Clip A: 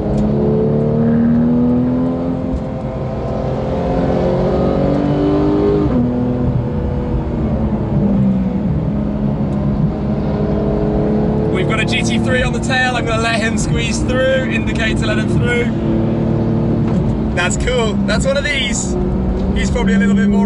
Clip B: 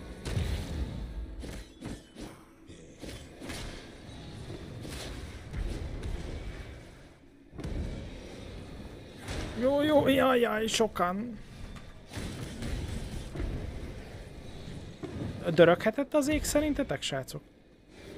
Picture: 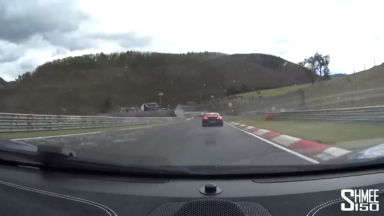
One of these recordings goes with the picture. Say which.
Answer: A